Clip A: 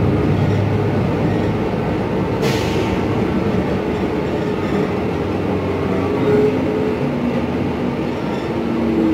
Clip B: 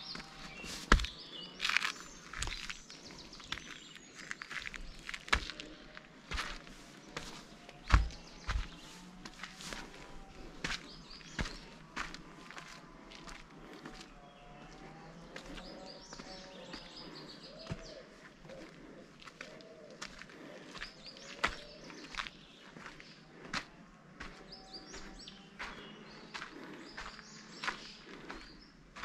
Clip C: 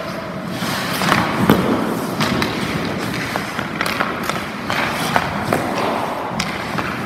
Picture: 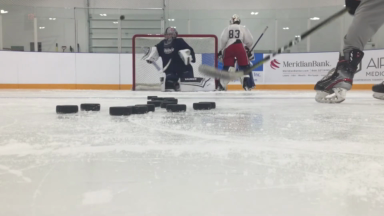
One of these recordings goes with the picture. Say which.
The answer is C